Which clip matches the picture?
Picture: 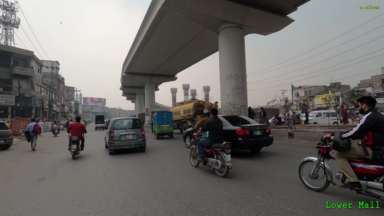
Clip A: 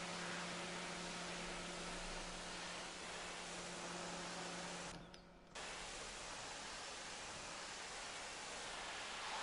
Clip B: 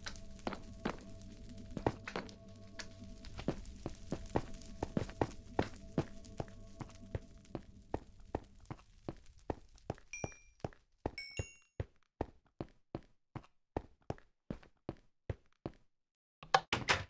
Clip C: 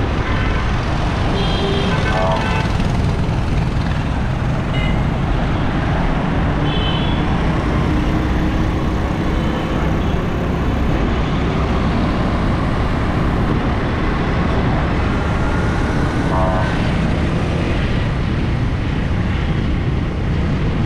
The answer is C